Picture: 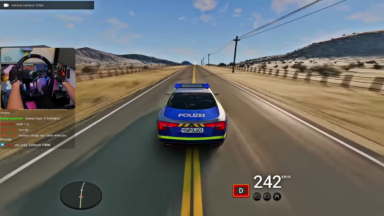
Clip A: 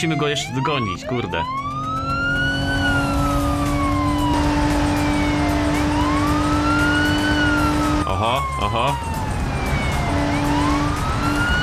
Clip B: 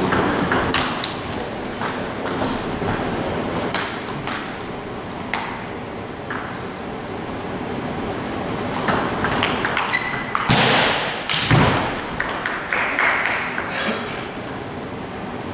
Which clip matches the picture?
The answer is A